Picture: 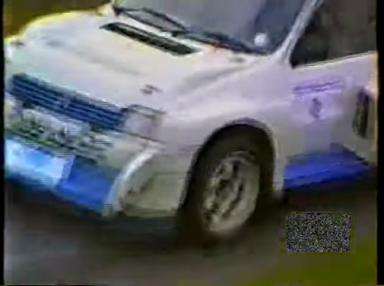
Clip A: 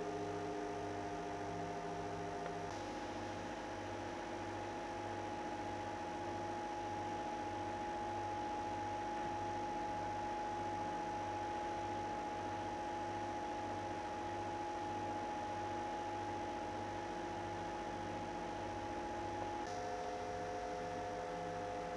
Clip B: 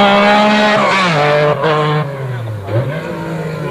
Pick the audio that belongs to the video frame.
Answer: B